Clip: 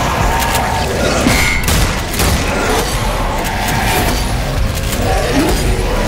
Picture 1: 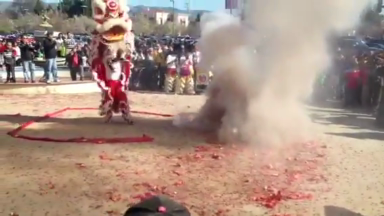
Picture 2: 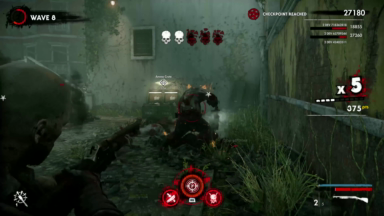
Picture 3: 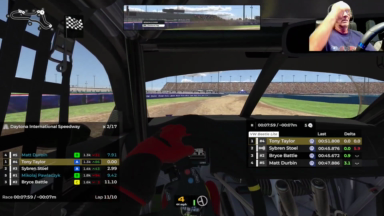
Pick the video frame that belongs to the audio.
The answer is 2